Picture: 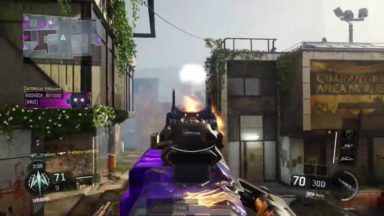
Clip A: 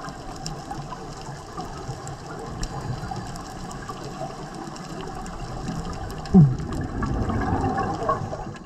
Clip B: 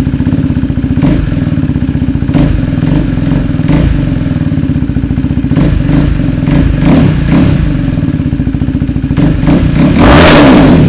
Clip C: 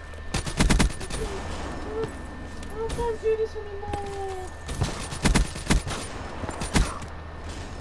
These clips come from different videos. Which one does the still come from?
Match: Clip C